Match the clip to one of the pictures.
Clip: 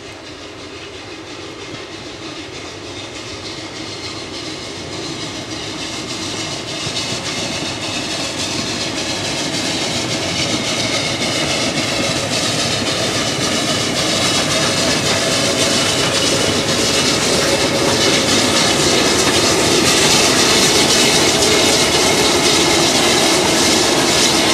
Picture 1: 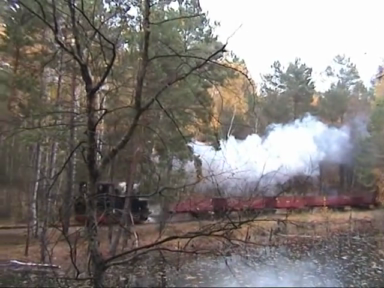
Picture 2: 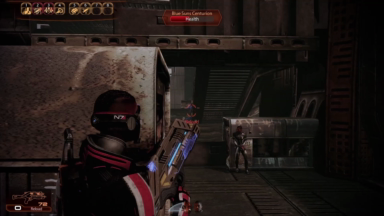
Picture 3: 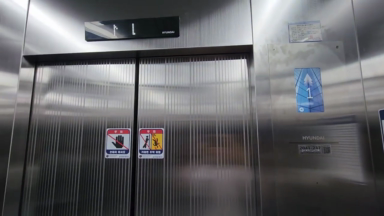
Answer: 1